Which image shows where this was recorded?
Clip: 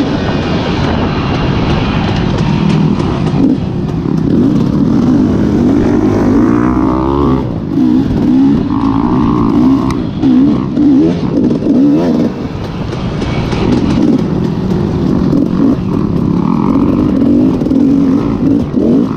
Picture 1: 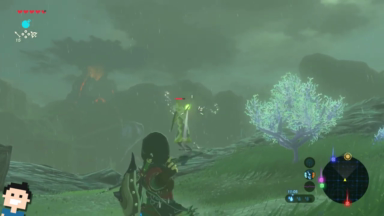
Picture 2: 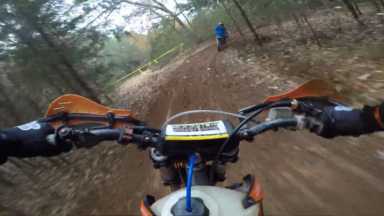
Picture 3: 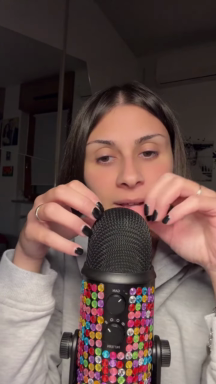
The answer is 2